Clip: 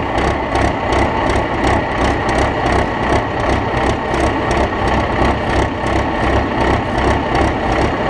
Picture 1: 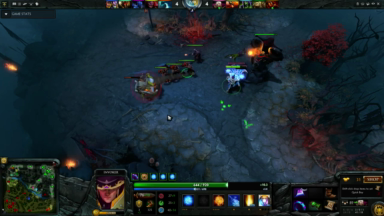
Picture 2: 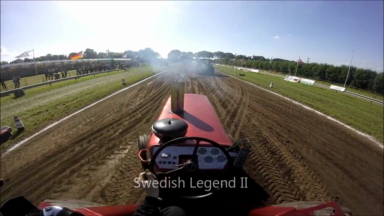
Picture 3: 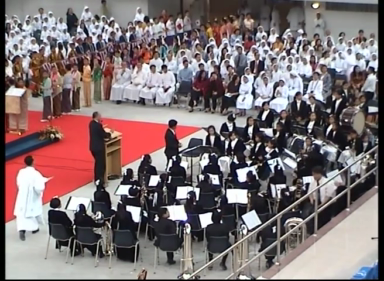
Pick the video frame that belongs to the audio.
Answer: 2